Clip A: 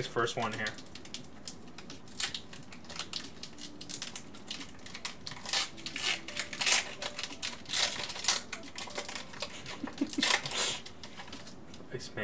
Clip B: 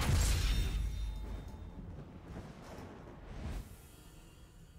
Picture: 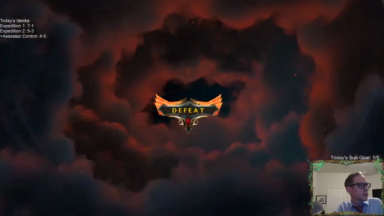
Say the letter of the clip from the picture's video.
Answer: B